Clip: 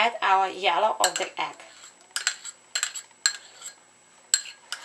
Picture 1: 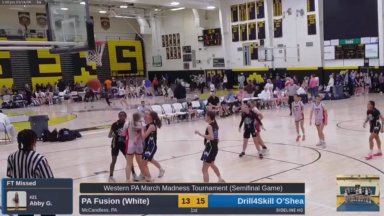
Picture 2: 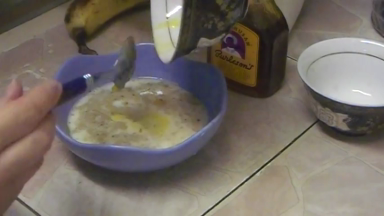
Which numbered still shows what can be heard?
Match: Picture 2